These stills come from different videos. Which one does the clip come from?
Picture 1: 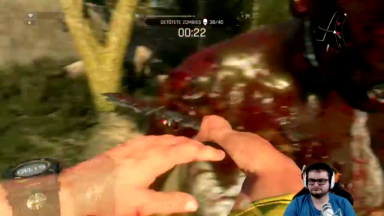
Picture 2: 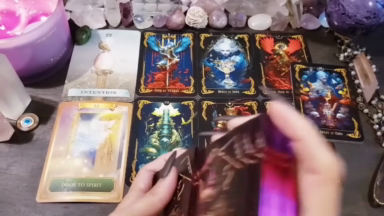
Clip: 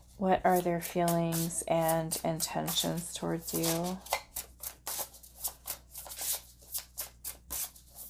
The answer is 2